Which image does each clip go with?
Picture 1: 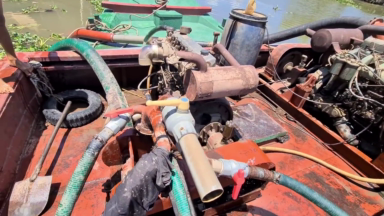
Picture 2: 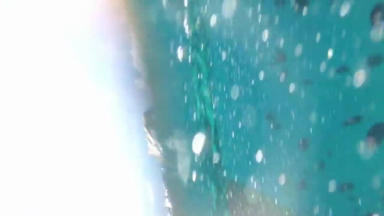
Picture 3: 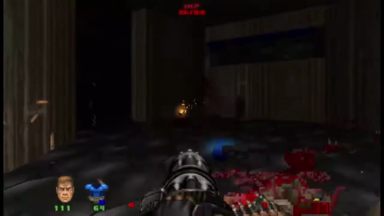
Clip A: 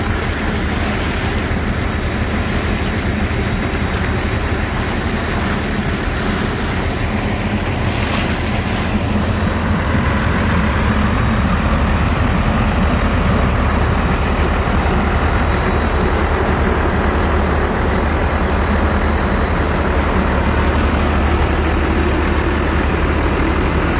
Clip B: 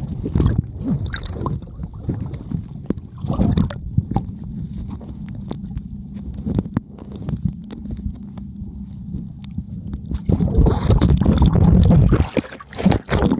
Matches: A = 1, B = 2